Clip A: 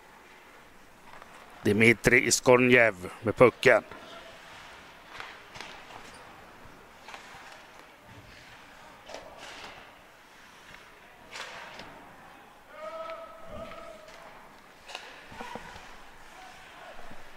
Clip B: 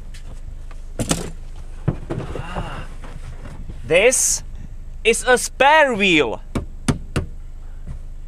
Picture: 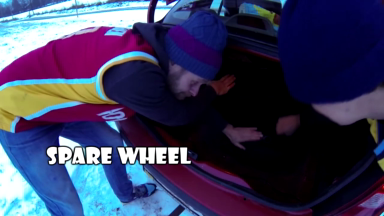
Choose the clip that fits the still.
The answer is B